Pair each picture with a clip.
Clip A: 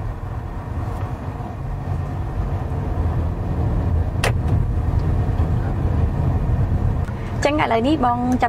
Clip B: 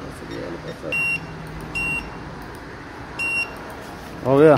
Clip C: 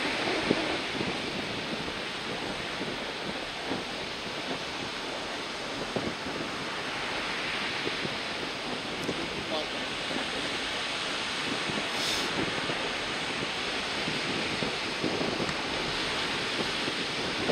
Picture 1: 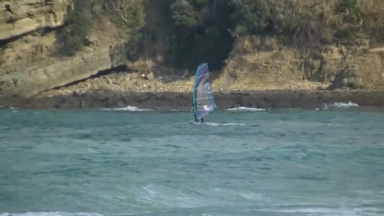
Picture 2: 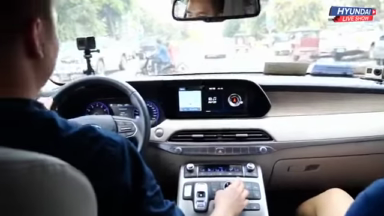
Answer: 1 C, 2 A